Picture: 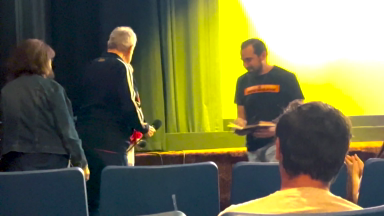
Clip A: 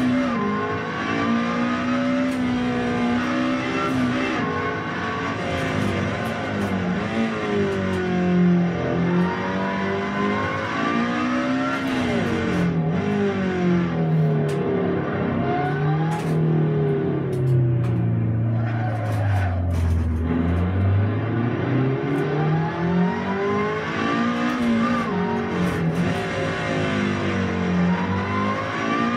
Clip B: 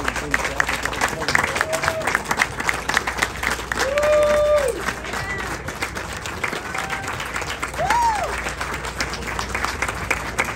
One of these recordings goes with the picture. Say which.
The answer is B